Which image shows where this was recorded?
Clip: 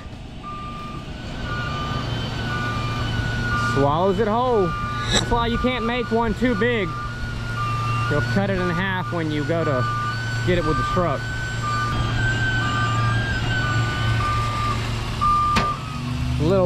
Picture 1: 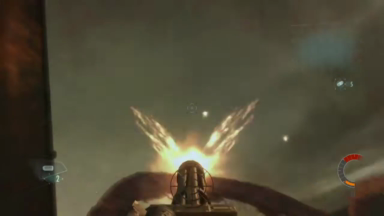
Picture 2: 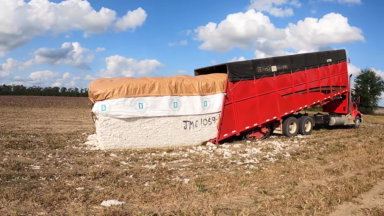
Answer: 2